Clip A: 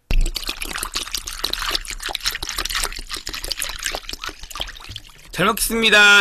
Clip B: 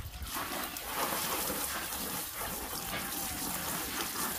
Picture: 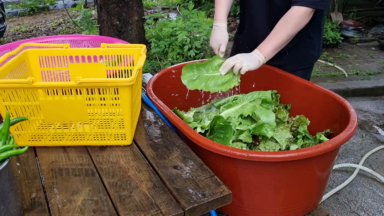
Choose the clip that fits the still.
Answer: B